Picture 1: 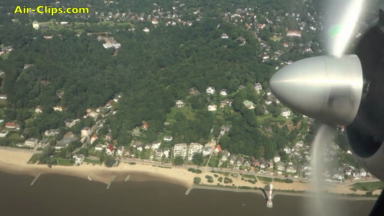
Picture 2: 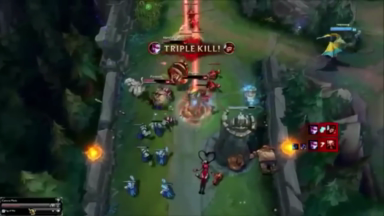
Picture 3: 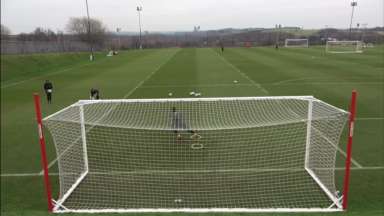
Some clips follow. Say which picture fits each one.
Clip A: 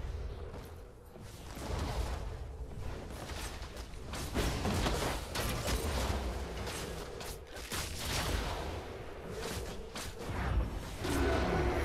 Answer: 2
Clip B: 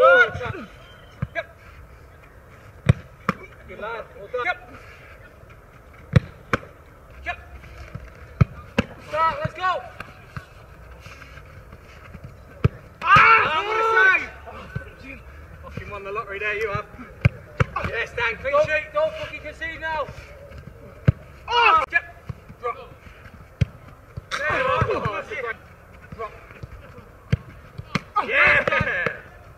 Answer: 3